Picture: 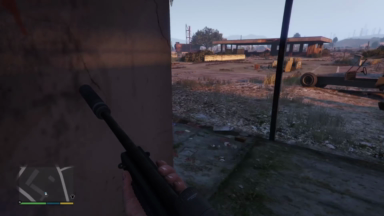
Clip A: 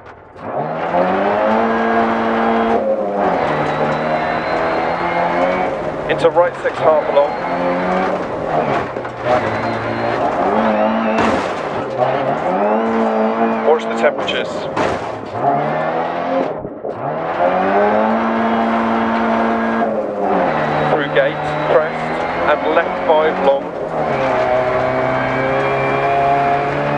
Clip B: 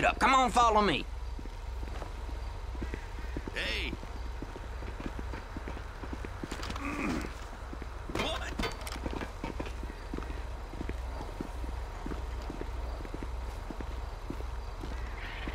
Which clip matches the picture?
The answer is B